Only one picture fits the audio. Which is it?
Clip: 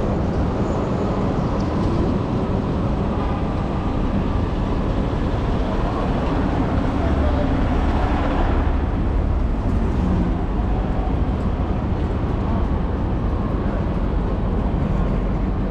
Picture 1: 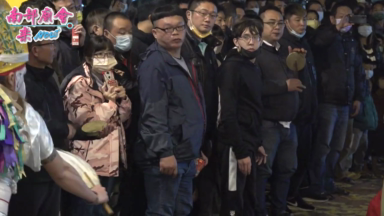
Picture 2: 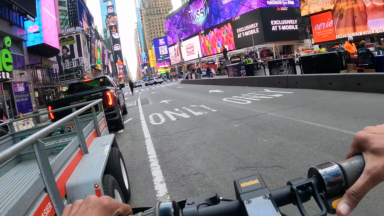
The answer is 2